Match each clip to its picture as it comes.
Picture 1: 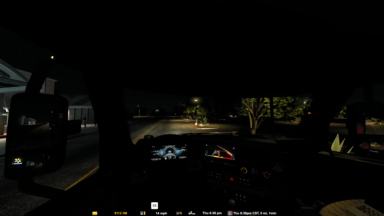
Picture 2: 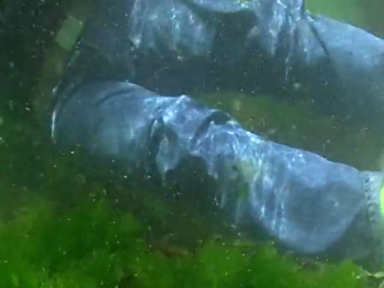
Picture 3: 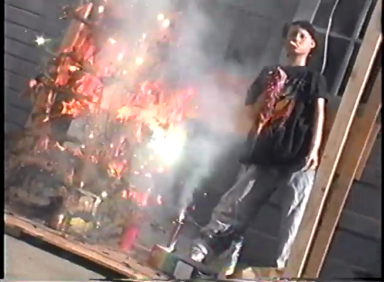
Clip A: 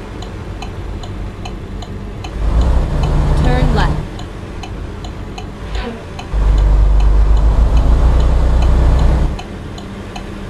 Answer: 1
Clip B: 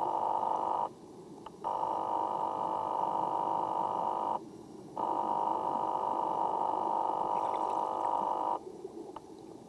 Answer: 2